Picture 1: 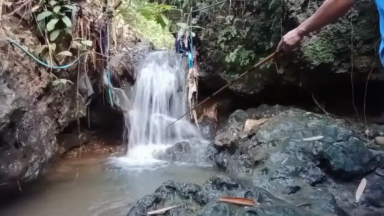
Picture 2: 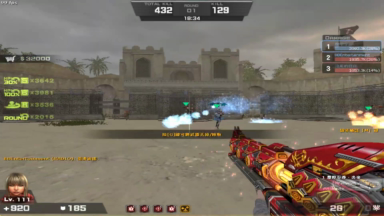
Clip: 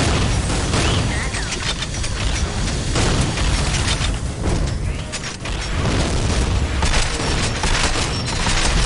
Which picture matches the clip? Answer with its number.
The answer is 2